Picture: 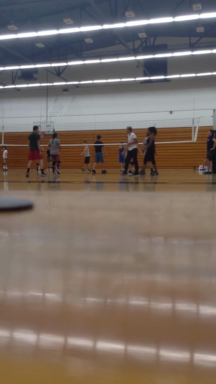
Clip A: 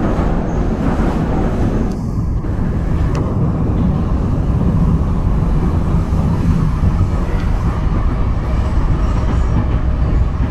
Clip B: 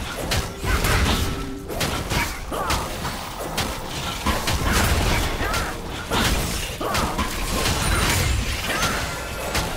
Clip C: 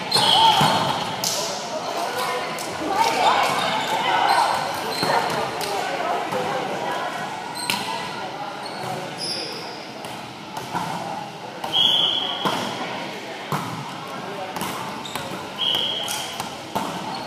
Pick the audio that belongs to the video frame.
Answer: C